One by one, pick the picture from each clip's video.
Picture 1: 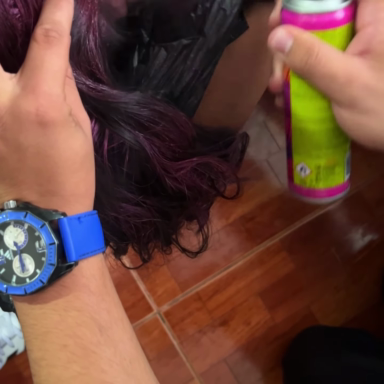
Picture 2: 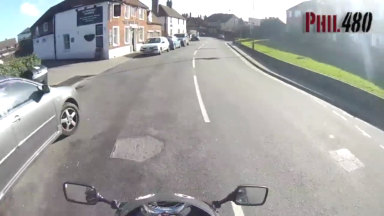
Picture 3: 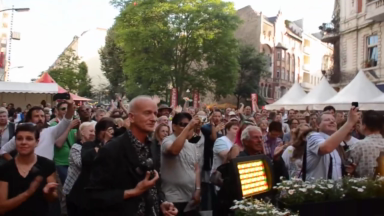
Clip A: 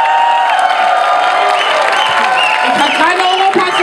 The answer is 3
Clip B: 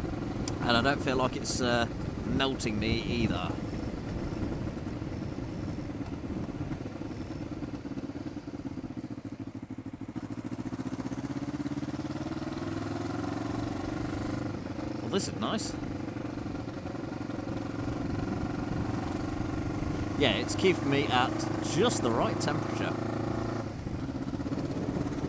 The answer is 2